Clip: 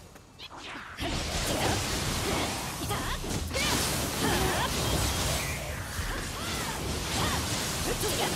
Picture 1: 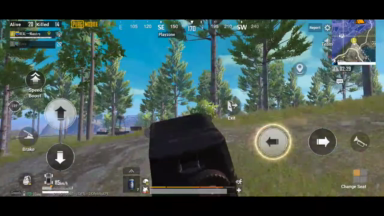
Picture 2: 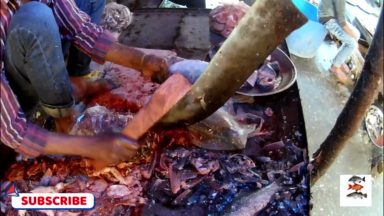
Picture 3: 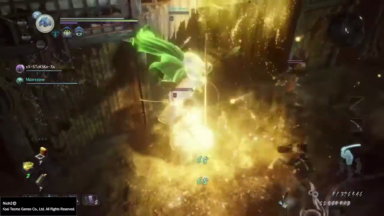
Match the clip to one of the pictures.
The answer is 3